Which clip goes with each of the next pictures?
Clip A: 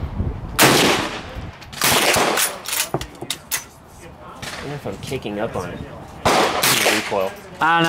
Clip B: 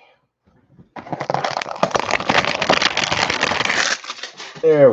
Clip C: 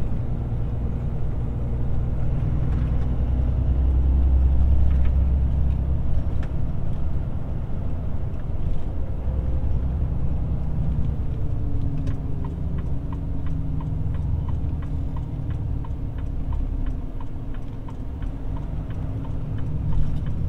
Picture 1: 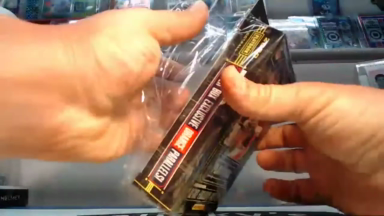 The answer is B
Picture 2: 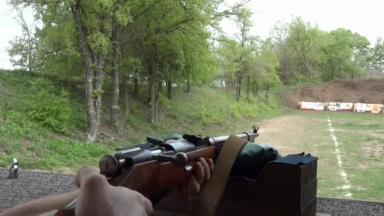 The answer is A